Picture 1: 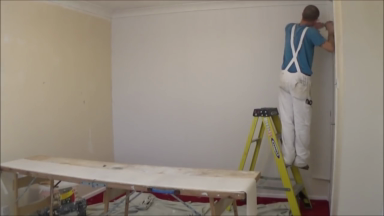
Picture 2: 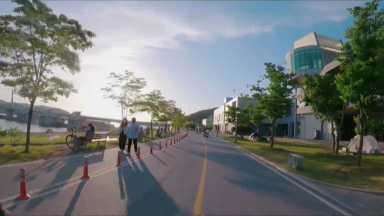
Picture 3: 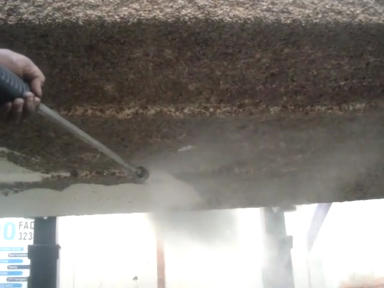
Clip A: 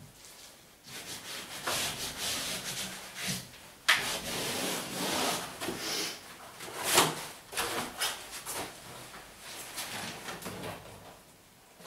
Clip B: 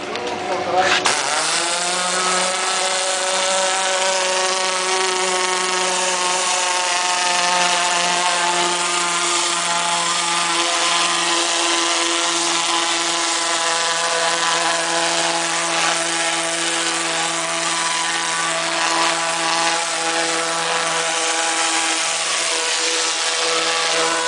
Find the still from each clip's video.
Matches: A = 1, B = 3